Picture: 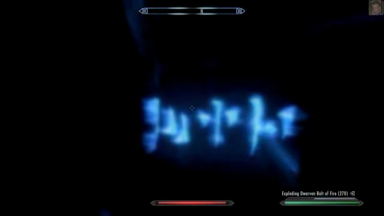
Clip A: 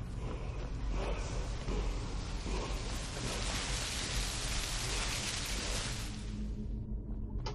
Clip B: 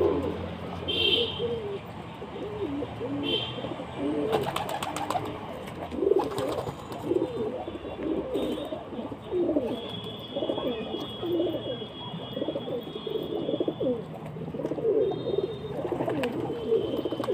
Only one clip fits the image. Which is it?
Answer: A